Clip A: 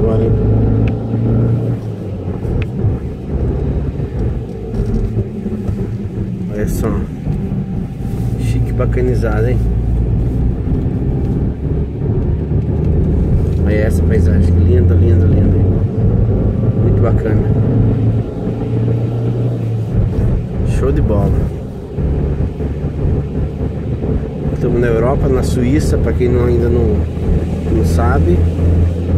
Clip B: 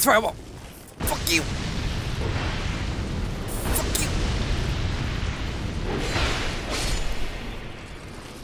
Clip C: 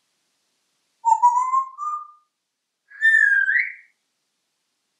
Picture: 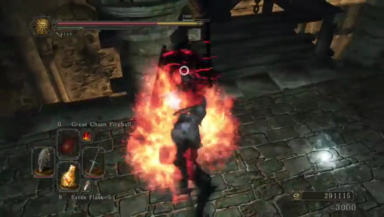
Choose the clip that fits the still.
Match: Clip B